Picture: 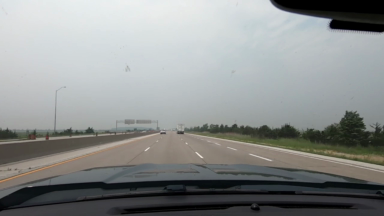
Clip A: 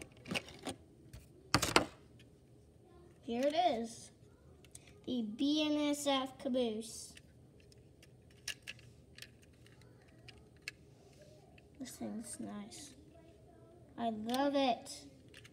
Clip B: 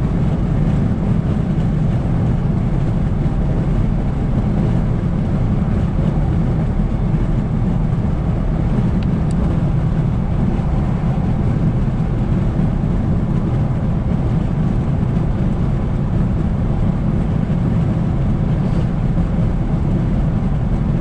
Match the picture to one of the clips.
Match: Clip B